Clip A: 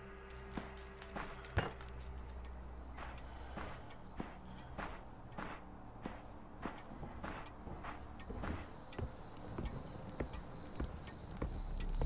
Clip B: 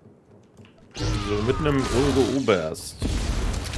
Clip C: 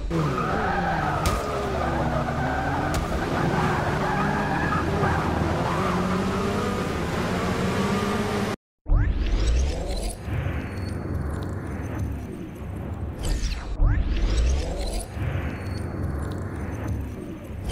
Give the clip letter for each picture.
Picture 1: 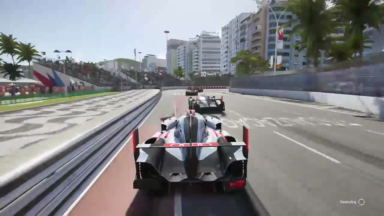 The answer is C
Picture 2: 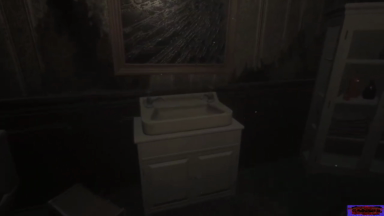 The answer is A